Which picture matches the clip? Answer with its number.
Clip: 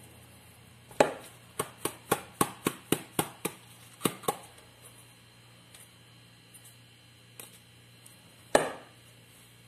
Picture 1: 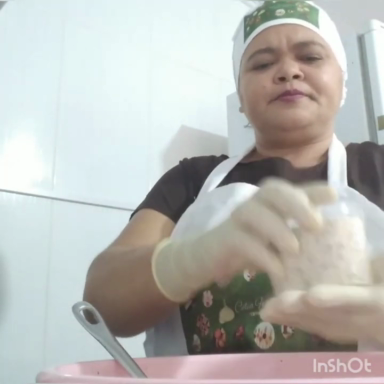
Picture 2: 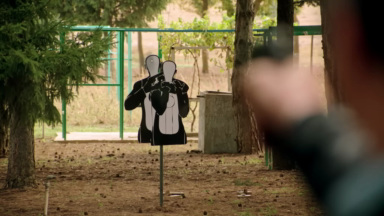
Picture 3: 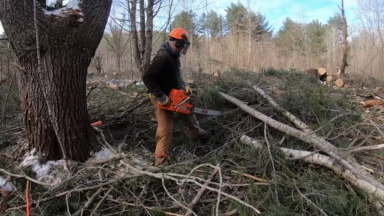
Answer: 1